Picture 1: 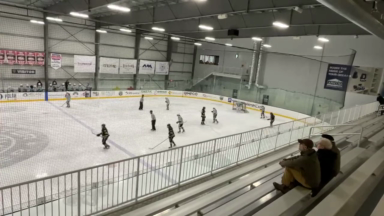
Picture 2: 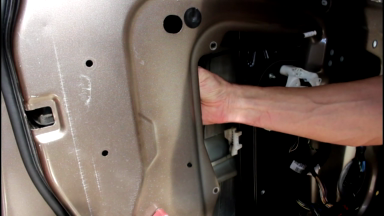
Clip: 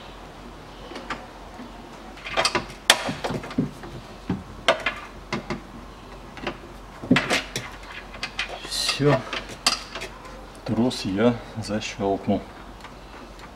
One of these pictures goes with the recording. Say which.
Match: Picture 2